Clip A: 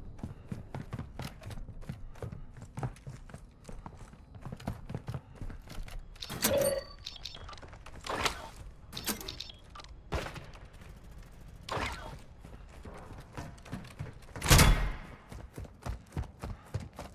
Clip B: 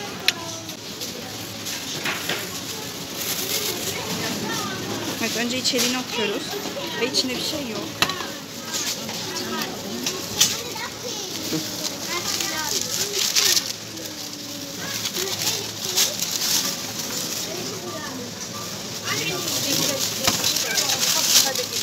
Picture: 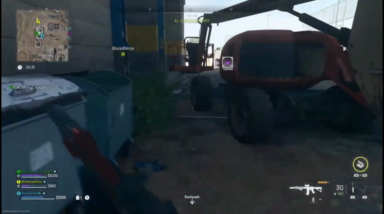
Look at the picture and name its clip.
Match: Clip A